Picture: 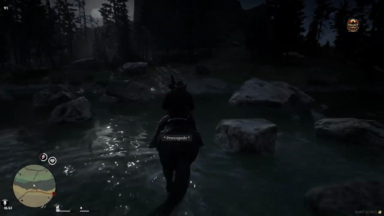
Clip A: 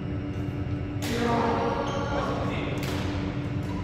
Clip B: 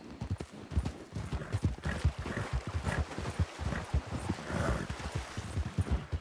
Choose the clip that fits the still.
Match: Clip B